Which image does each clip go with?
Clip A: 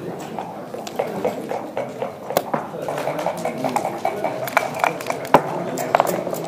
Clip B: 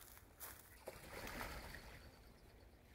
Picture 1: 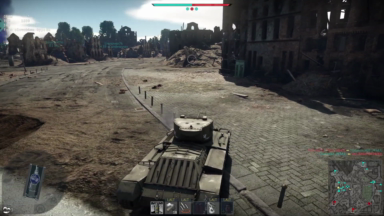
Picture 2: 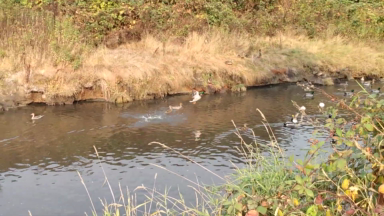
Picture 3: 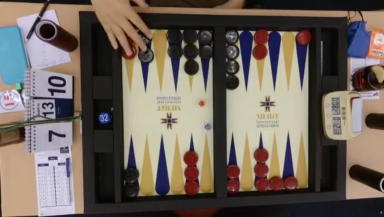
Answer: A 3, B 2